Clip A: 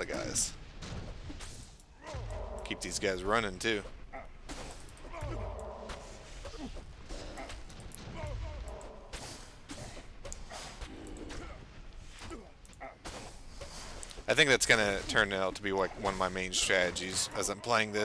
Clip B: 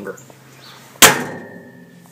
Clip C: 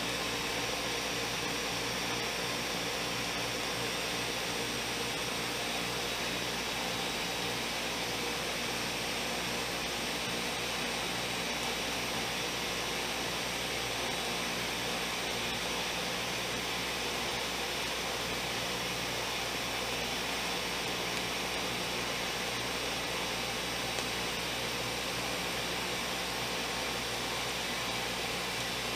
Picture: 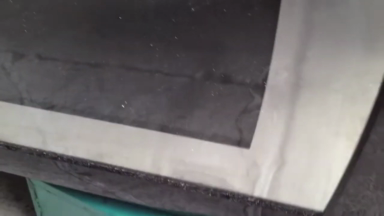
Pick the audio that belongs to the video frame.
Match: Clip B